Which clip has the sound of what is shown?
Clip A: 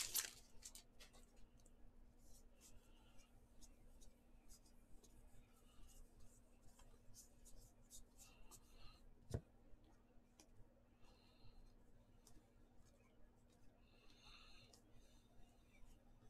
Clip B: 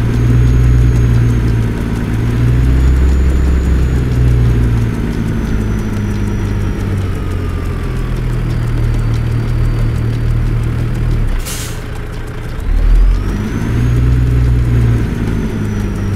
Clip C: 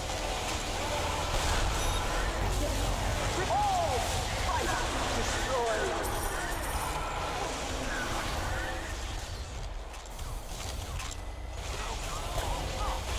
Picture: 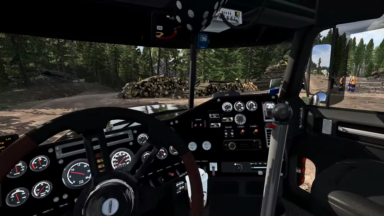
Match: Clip B